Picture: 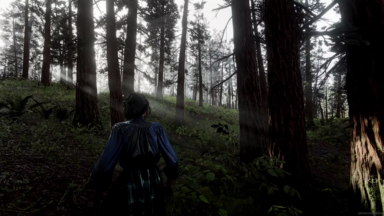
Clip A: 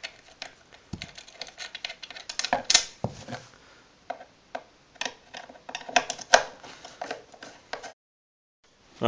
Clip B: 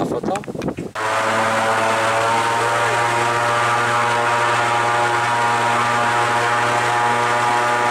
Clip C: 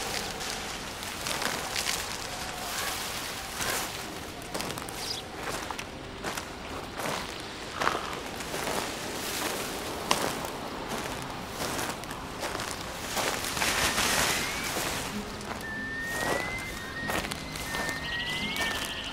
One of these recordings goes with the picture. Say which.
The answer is C